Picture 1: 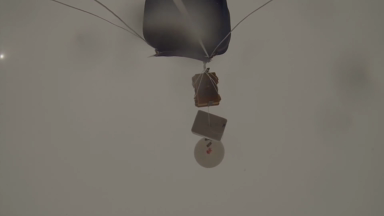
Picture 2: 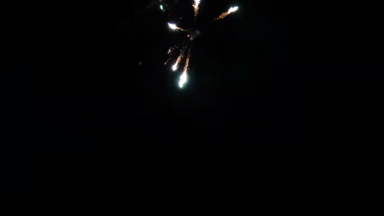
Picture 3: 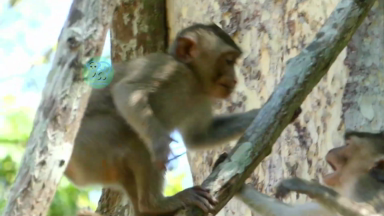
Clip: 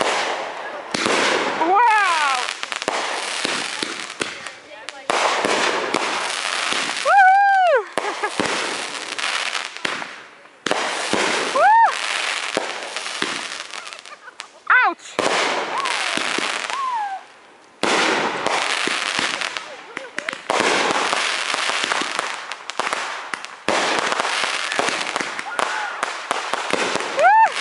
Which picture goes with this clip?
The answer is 2